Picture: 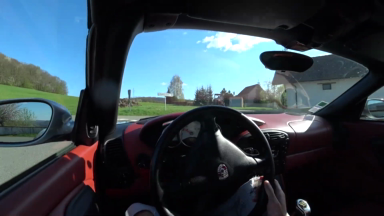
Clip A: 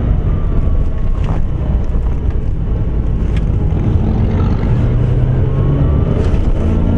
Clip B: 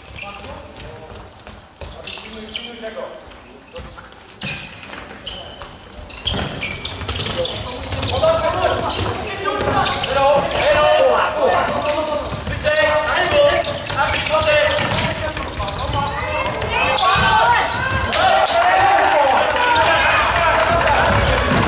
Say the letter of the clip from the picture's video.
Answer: A